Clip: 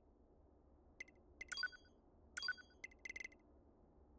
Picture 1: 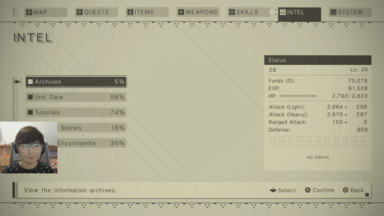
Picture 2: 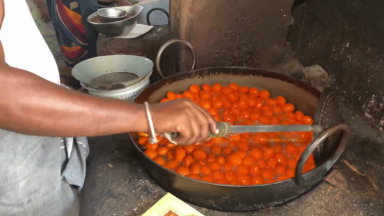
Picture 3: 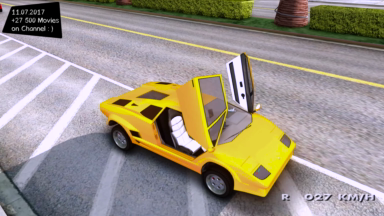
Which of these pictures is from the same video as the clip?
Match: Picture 1